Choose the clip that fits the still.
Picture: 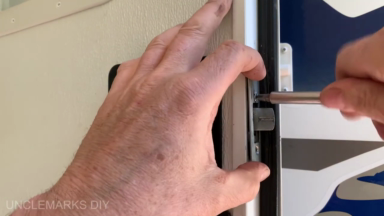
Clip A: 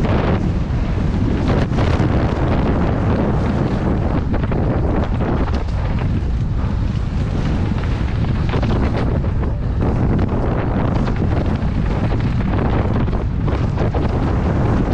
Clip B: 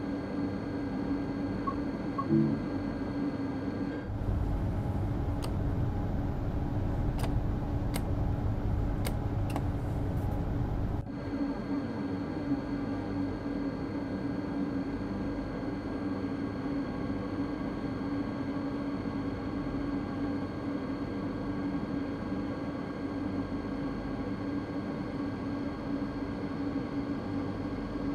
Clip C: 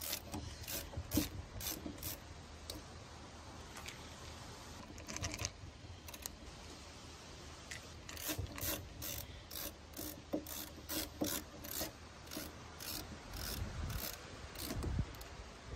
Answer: C